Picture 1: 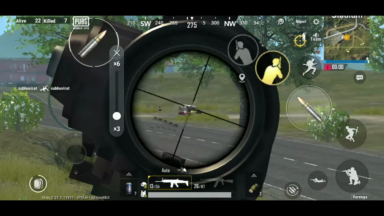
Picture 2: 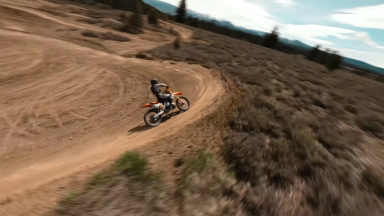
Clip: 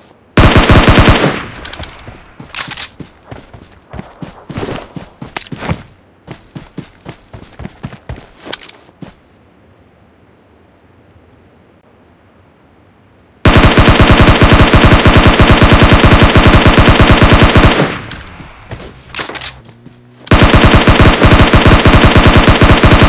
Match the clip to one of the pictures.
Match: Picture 1